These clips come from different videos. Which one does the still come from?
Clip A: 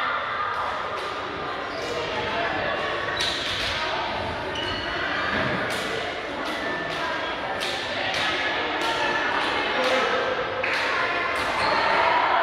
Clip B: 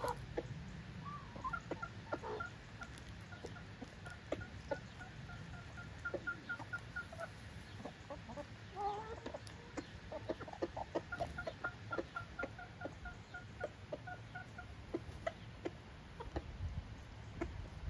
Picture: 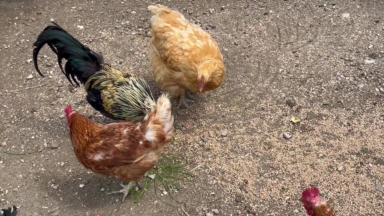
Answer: B